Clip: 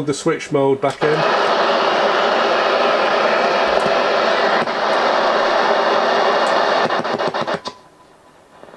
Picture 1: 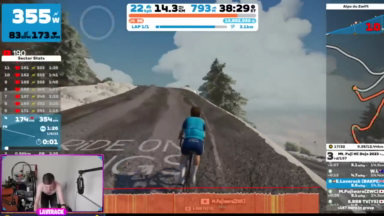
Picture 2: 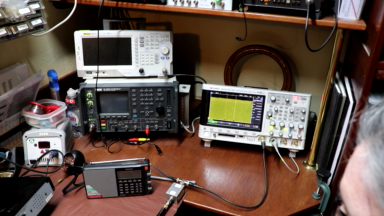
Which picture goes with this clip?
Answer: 2